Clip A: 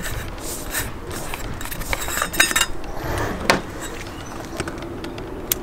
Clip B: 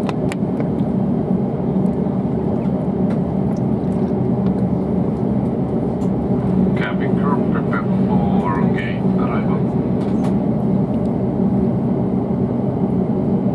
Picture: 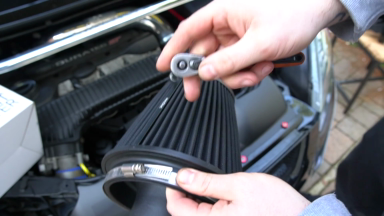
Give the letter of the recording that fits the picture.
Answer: A